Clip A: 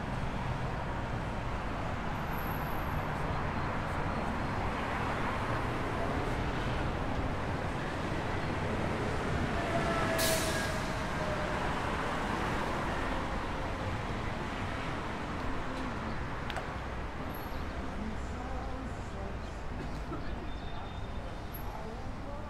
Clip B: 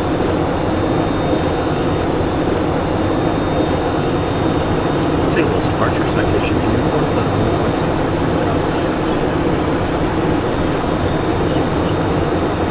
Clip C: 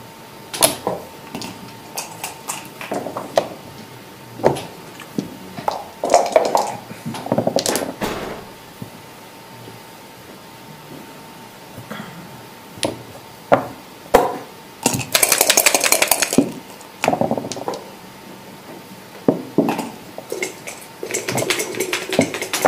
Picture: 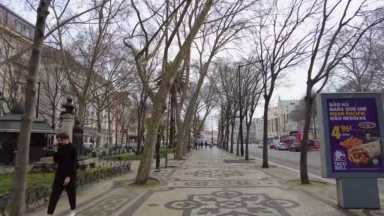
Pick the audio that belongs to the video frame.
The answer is A